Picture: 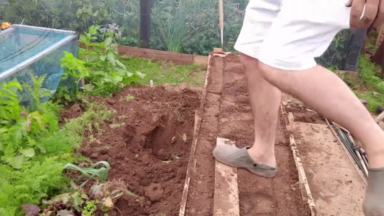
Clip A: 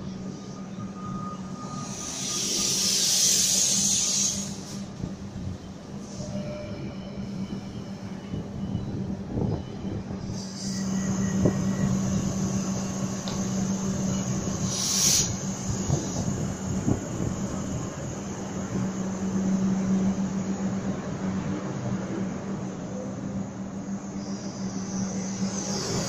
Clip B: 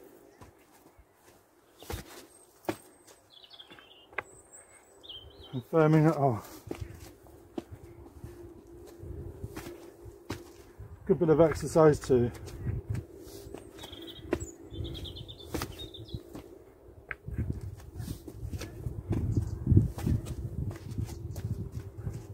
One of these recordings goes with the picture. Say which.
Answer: B